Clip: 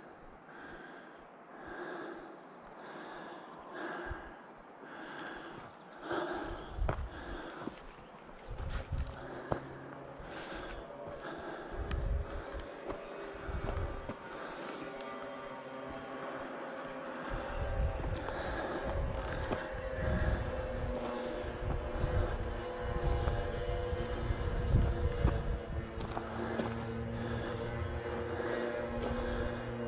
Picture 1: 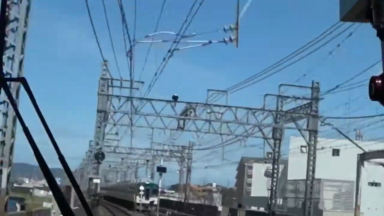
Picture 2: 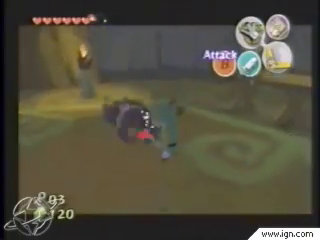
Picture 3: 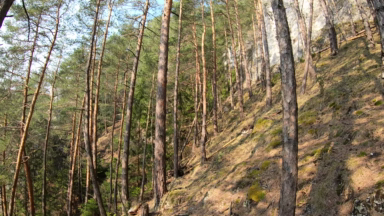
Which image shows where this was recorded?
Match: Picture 3